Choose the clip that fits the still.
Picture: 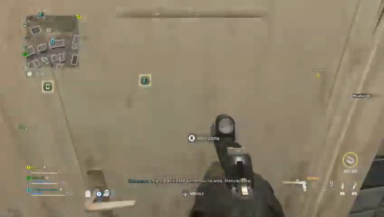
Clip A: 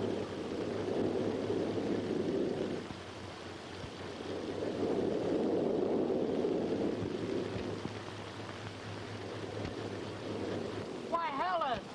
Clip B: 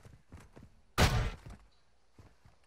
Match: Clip B